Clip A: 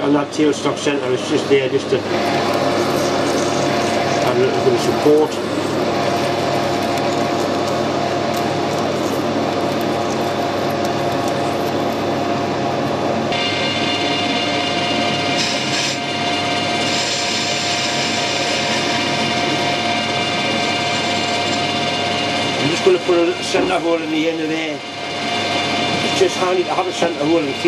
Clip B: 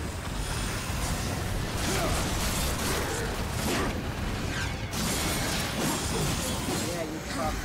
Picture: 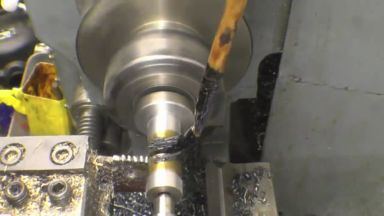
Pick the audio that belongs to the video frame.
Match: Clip A